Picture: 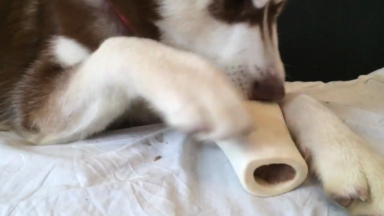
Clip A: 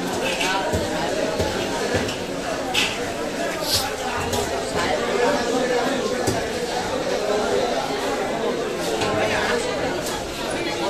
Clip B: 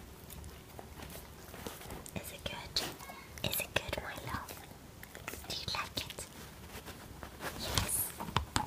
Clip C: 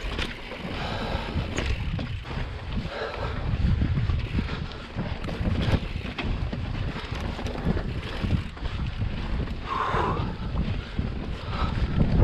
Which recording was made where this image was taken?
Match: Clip B